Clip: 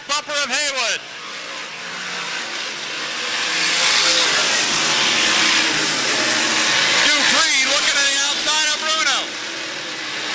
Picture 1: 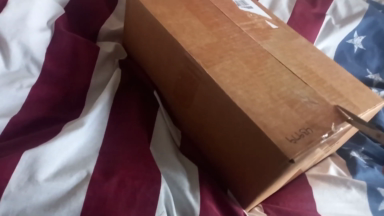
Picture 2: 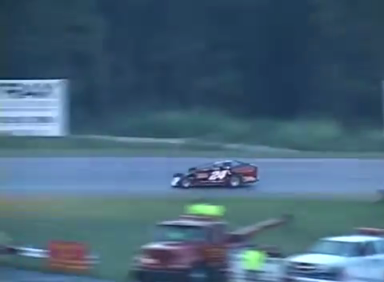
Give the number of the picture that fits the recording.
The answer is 2